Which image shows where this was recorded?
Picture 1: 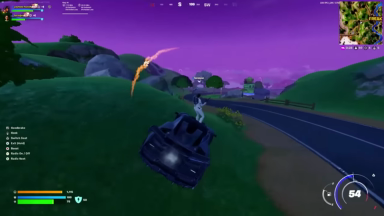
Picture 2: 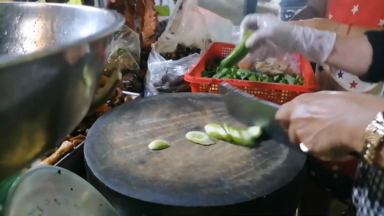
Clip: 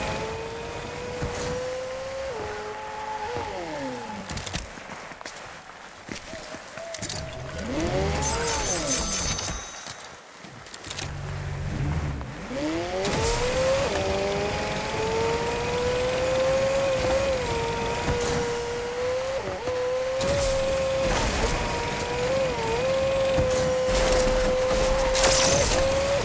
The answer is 1